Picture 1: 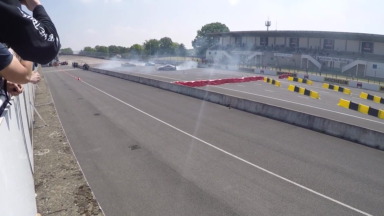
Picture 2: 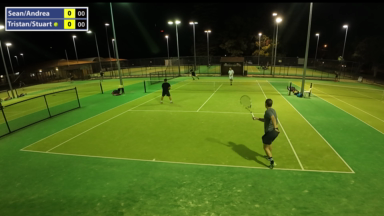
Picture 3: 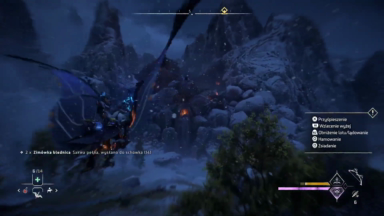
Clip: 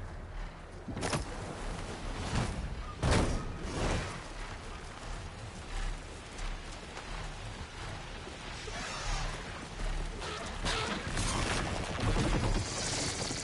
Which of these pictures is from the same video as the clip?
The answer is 3